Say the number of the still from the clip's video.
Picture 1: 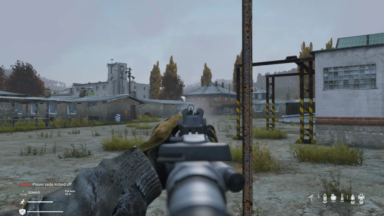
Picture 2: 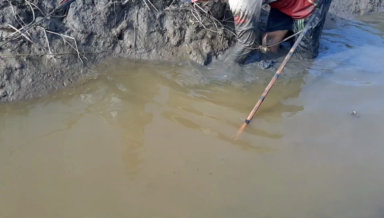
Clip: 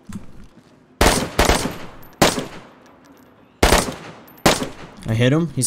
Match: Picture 1